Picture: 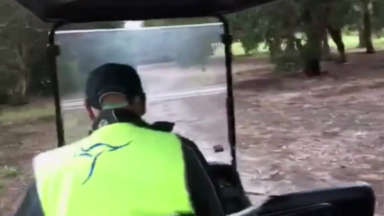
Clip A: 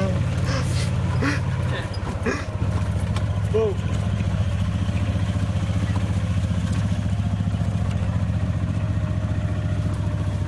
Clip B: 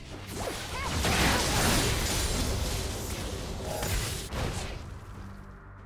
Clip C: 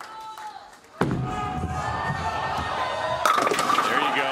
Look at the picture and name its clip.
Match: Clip A